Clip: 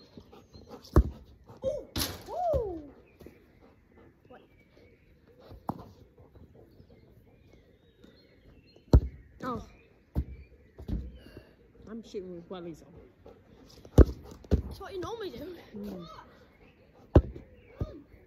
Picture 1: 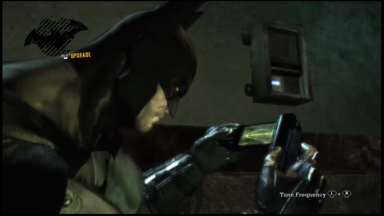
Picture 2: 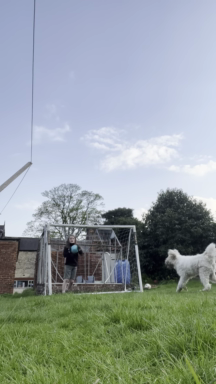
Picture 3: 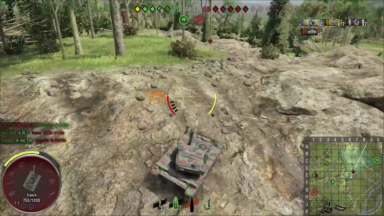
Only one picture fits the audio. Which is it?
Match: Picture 2